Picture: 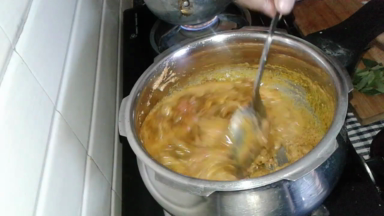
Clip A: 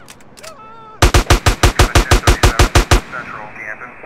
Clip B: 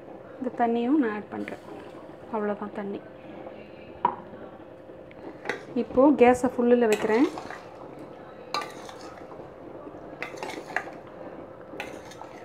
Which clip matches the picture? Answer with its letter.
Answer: B